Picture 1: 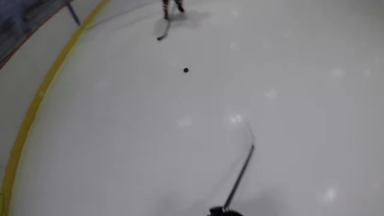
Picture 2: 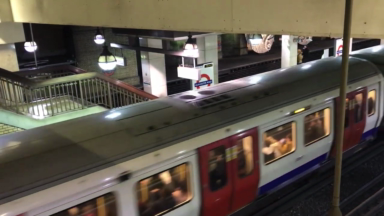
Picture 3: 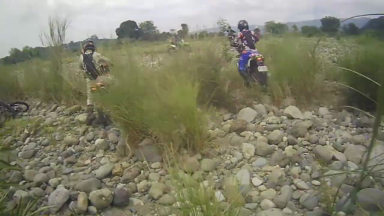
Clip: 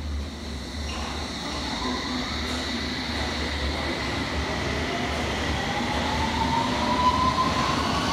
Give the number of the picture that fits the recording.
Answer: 2